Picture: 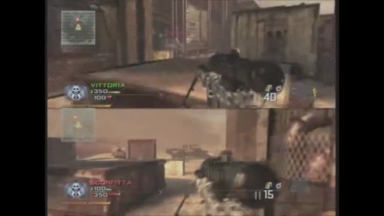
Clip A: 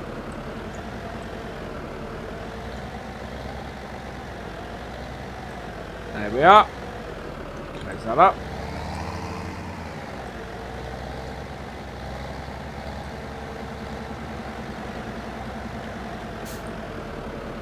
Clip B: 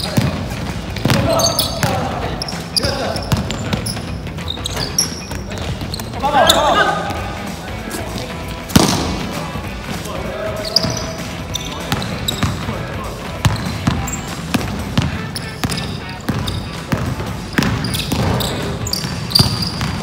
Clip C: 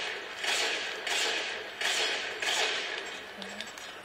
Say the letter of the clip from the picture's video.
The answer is C